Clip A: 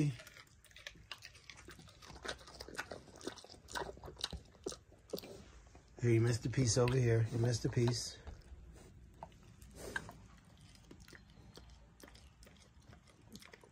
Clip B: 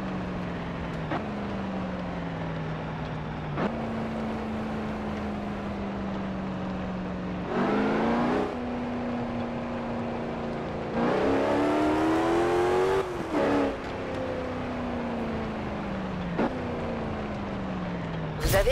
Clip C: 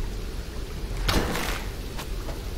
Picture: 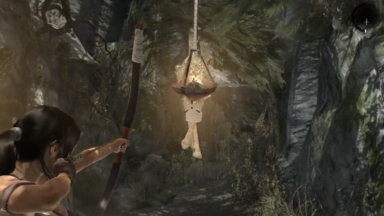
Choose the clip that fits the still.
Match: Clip C